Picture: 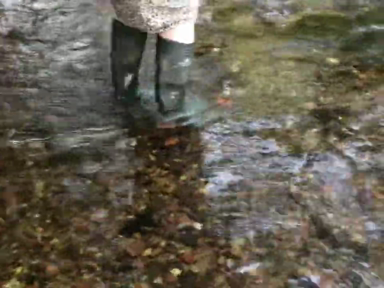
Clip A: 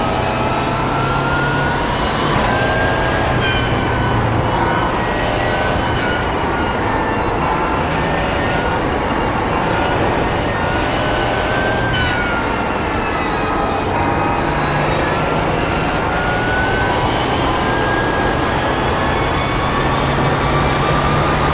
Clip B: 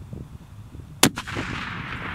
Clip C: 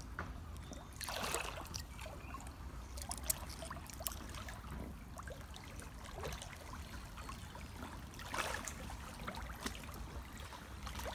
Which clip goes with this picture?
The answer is C